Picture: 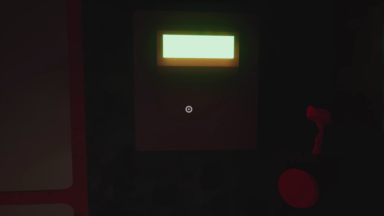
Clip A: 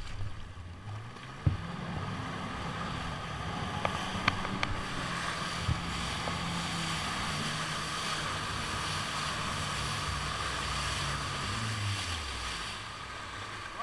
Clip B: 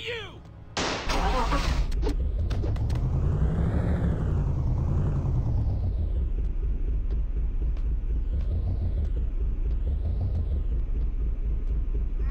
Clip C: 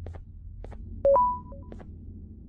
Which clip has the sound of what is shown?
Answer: C